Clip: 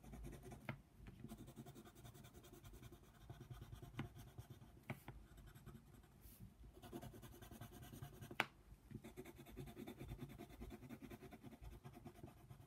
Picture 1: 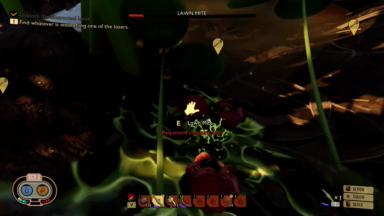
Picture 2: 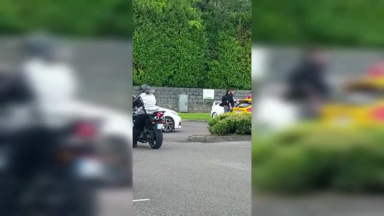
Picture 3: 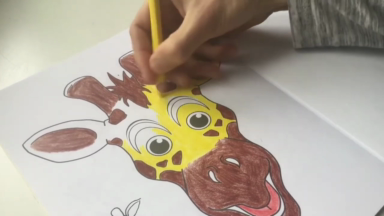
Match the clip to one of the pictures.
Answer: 3